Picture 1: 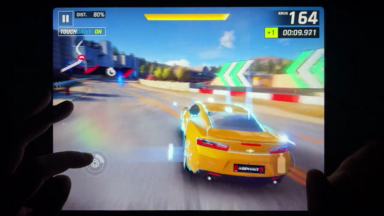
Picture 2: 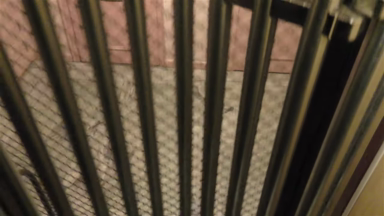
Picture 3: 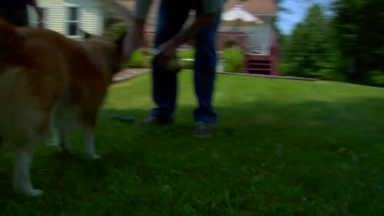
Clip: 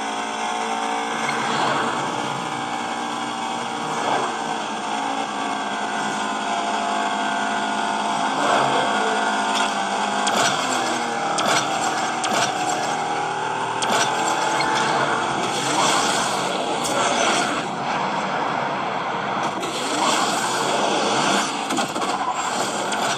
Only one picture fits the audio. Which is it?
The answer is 1